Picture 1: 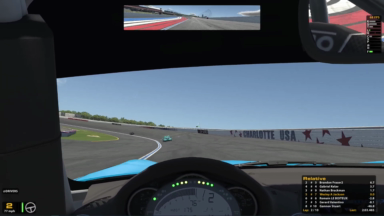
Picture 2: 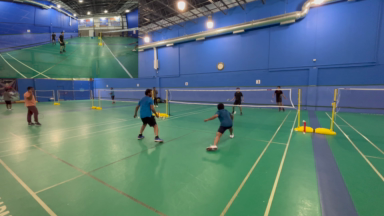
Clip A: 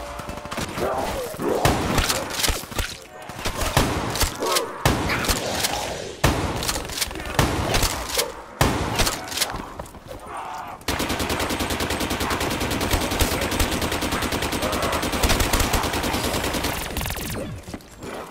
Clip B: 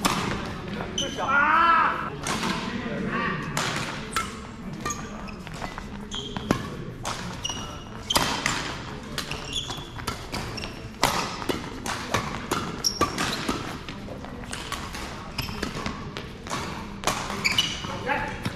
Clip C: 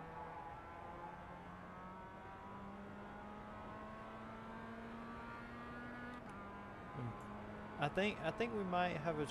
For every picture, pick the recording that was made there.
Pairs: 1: C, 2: B